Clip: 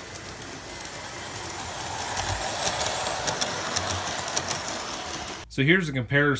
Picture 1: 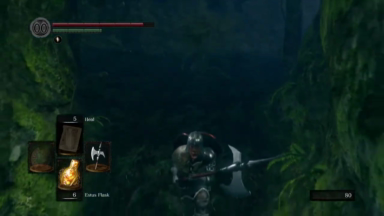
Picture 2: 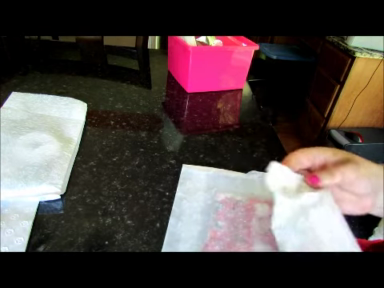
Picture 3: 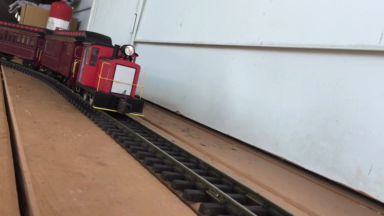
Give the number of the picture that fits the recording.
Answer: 3